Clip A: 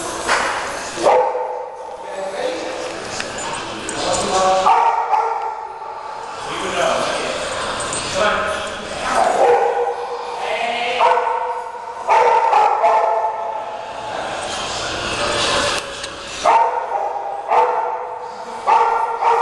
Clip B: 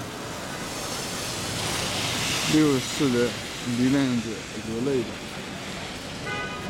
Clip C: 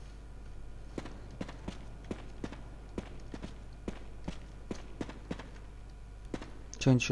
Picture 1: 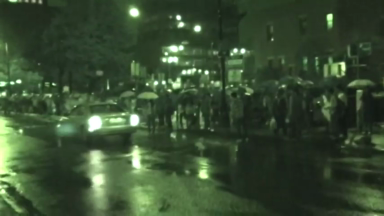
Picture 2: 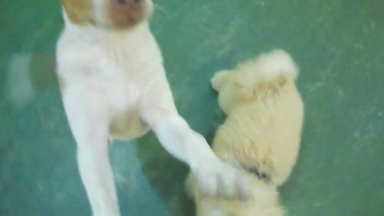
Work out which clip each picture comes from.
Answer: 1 B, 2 A